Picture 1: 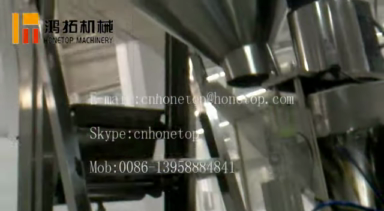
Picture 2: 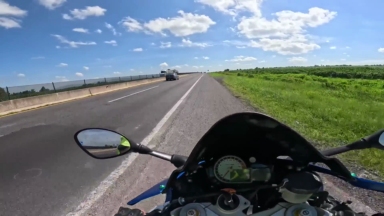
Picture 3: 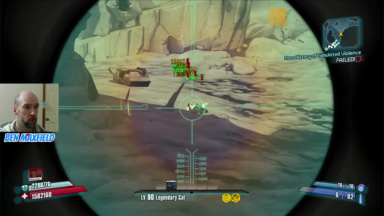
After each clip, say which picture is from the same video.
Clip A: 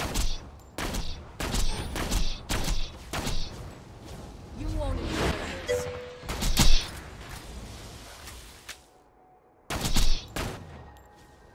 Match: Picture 3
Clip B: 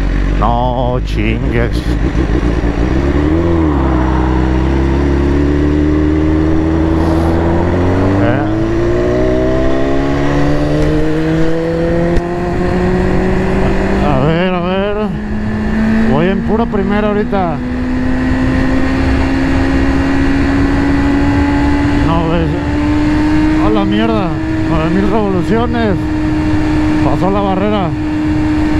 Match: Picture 2